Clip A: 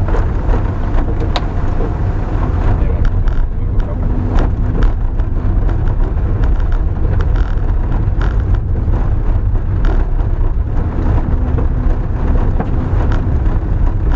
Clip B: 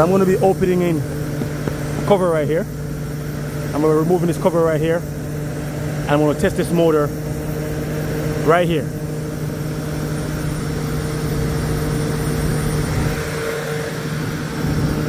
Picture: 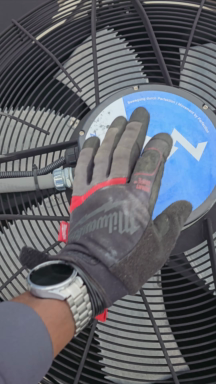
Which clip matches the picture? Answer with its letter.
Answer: B